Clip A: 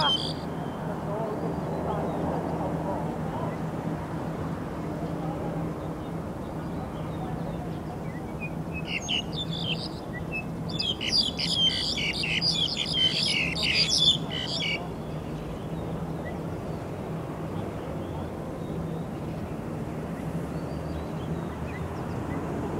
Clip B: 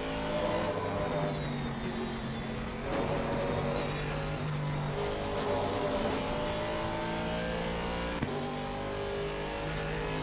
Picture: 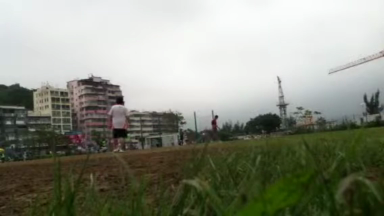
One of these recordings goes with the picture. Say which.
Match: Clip A